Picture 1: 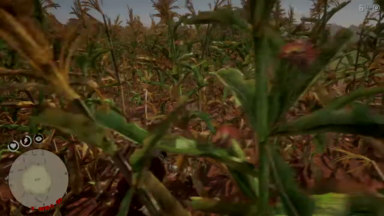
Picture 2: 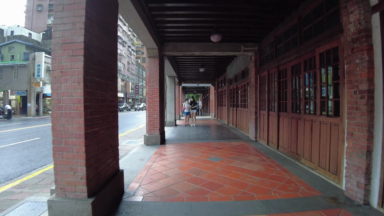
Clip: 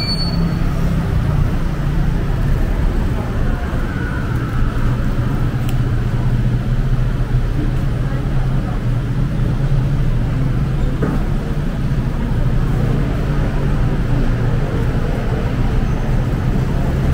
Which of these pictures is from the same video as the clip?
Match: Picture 2